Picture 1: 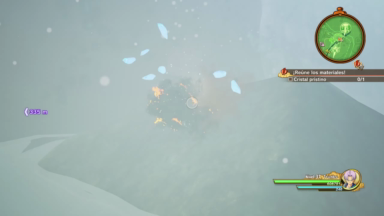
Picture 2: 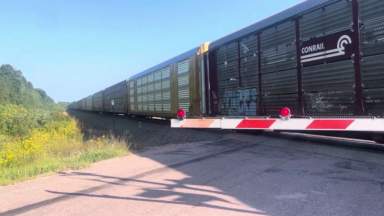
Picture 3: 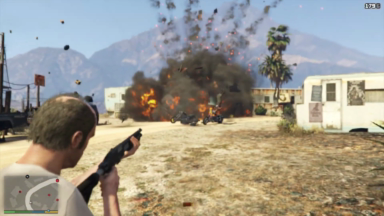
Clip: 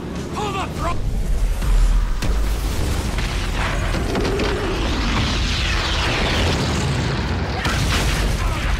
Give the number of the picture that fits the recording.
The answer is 3